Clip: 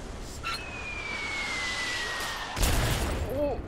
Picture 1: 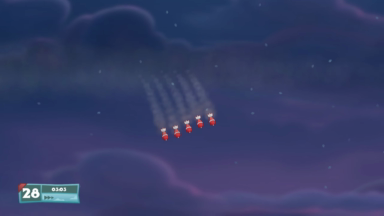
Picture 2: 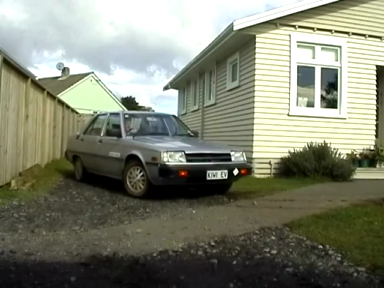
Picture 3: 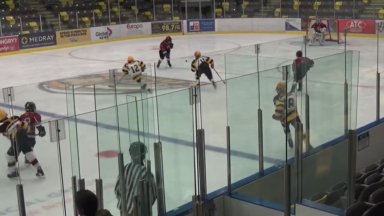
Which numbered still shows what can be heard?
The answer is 1